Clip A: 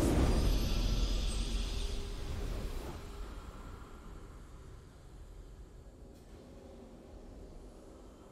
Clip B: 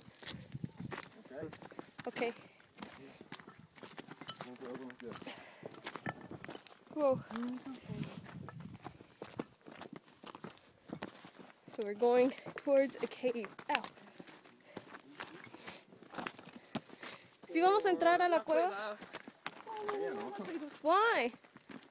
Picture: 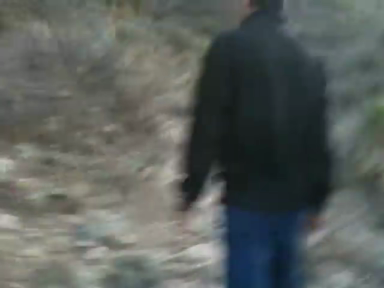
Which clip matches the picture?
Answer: B